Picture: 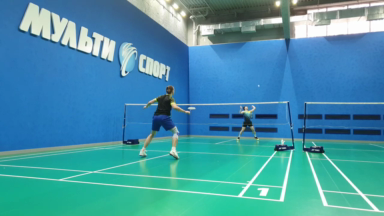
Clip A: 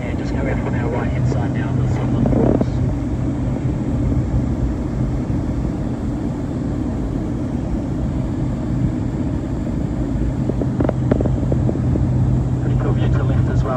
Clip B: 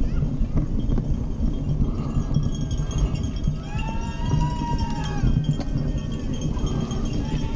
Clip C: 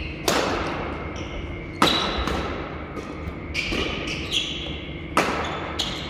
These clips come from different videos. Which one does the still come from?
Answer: C